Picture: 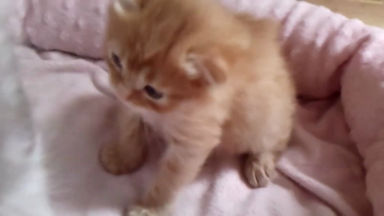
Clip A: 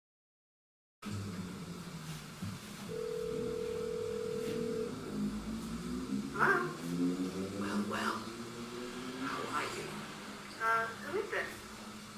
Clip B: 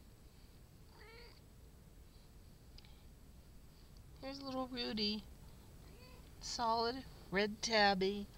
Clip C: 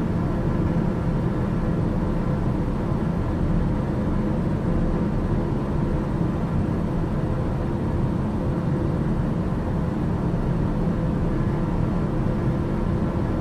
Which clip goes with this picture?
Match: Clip B